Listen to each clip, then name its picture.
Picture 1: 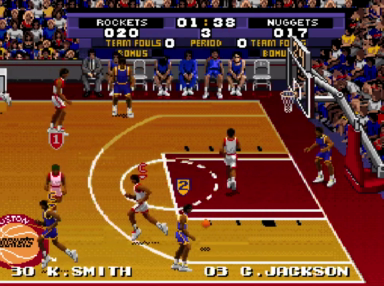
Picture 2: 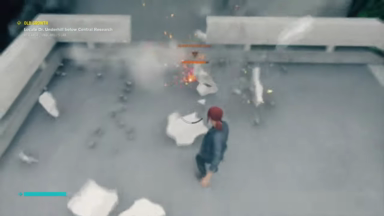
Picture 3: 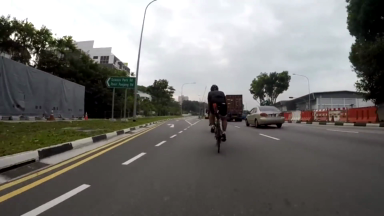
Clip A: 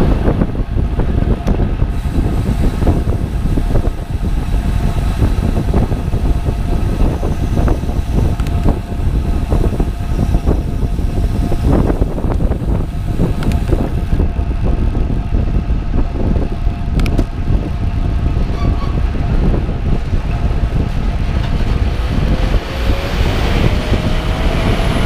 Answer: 3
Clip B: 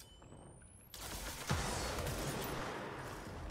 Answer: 2